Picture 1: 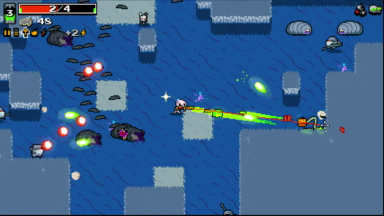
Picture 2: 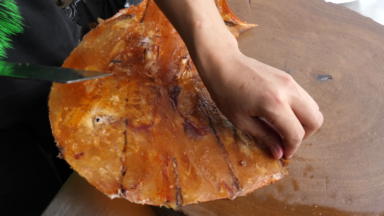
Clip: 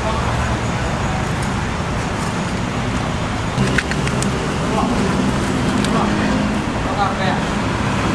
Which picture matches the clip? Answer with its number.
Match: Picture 2